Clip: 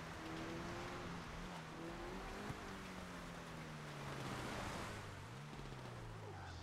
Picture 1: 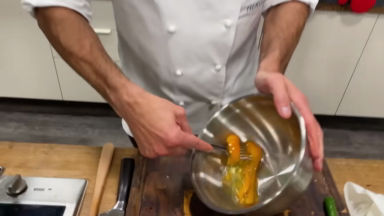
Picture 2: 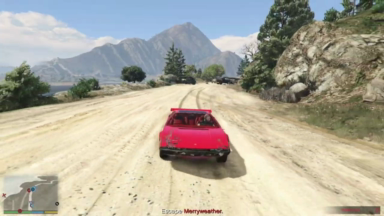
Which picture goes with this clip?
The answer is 2